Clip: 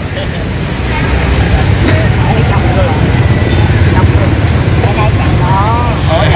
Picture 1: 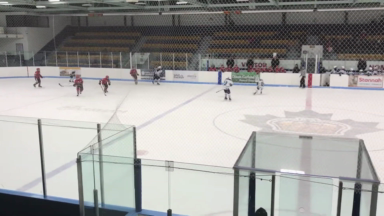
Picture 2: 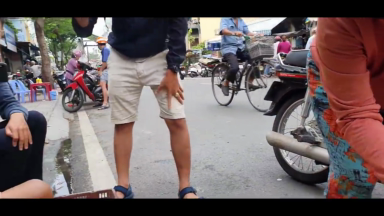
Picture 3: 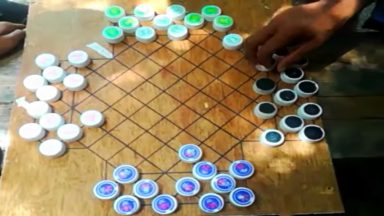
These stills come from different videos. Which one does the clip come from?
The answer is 2